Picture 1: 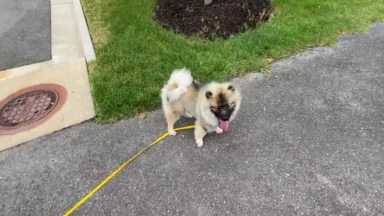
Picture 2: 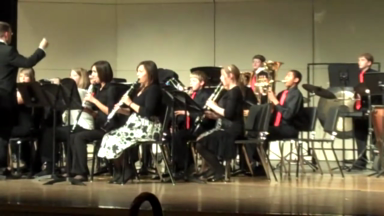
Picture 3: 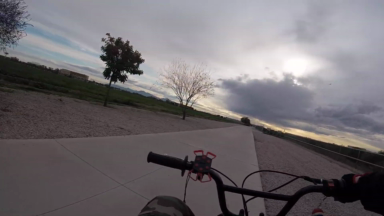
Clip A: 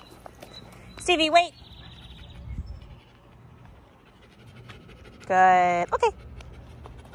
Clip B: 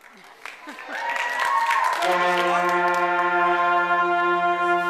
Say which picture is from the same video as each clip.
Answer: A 1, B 2